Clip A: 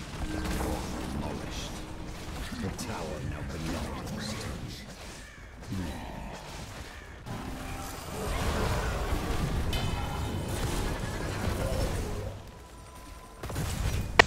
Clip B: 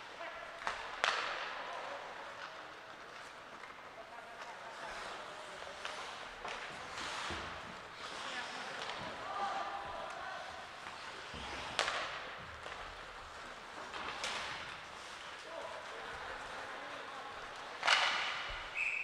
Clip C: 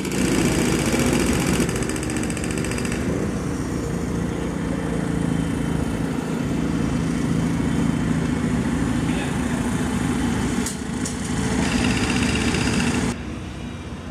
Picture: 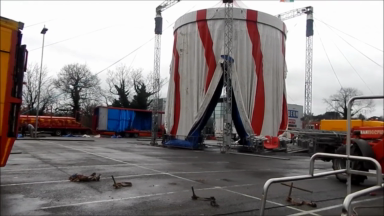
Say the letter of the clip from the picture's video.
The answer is C